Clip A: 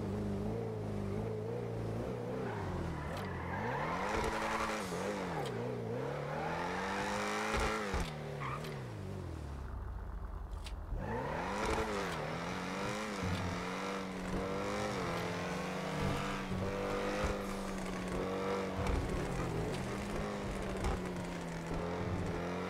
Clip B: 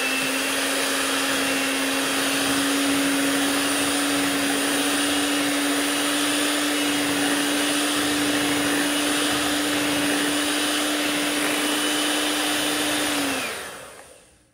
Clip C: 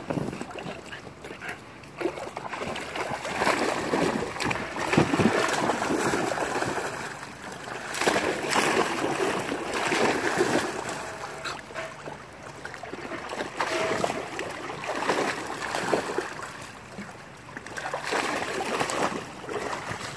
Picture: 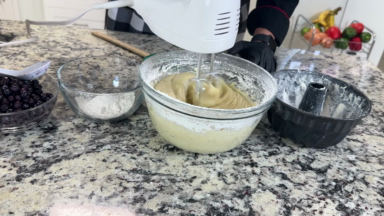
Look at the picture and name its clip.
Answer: B